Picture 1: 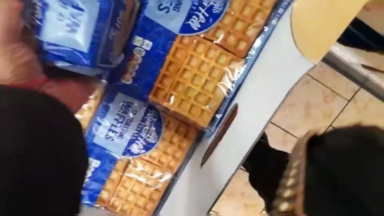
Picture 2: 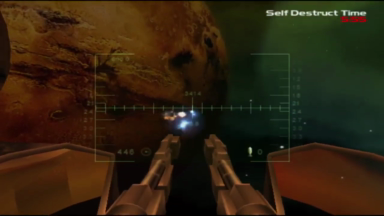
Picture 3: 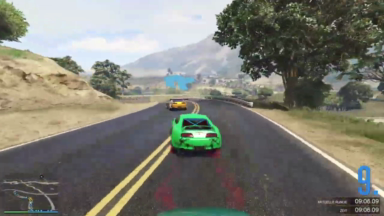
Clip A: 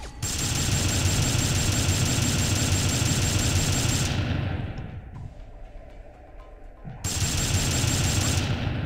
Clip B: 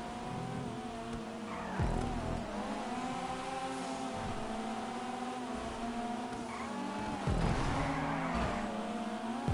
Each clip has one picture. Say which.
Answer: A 2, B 3